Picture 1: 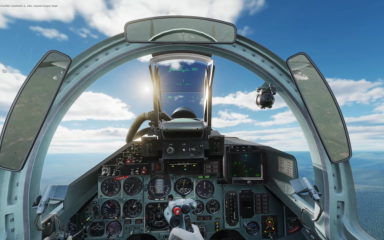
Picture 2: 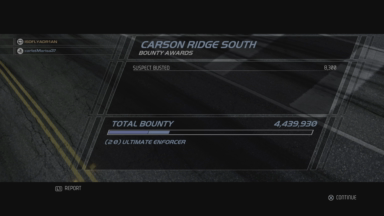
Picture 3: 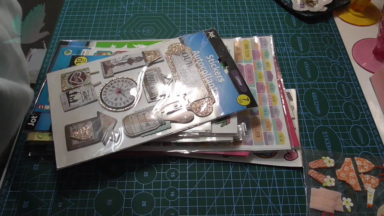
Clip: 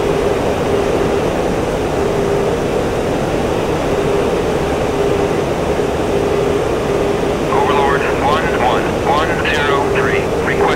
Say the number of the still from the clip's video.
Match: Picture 1